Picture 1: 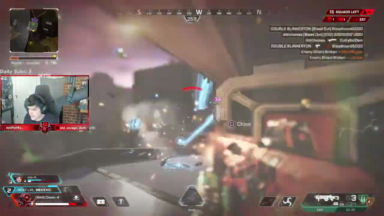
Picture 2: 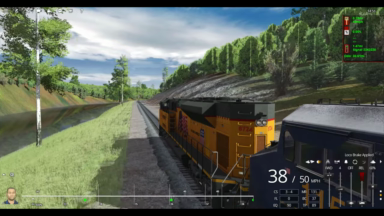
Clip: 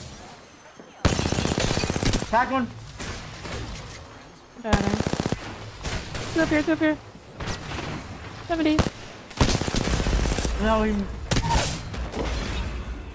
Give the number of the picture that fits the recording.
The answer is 1